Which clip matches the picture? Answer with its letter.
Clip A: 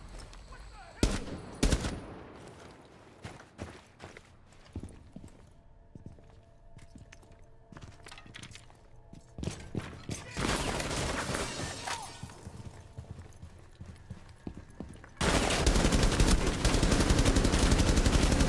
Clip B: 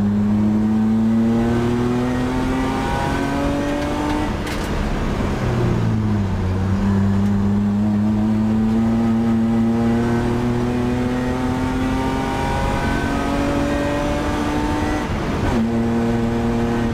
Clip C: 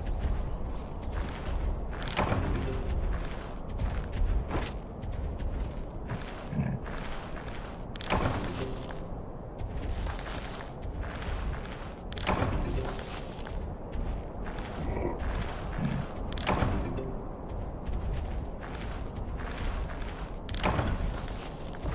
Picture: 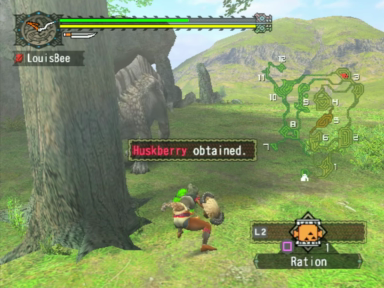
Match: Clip C